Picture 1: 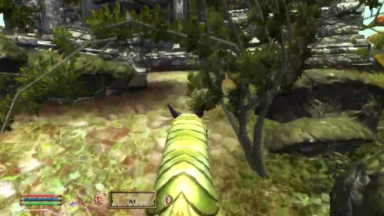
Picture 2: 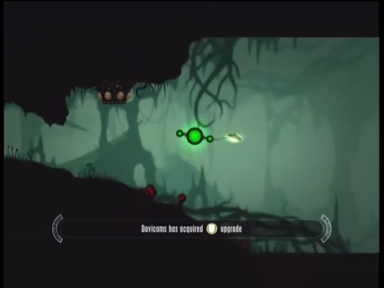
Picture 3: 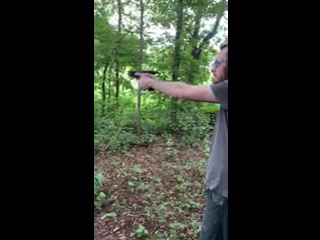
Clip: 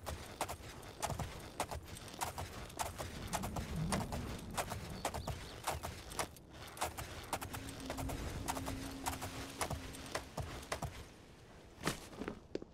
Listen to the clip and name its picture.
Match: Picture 1